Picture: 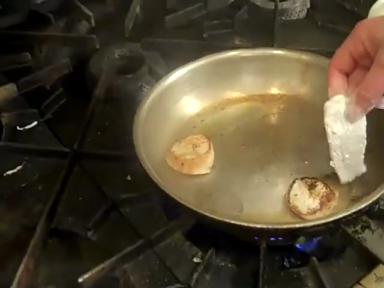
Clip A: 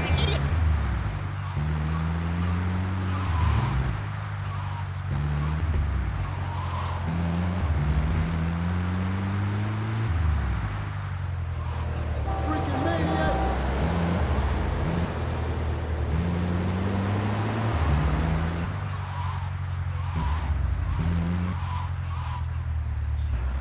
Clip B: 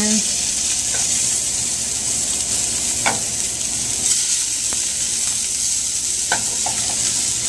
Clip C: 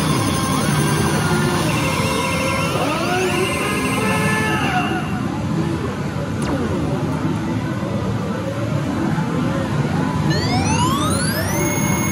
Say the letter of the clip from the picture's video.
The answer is B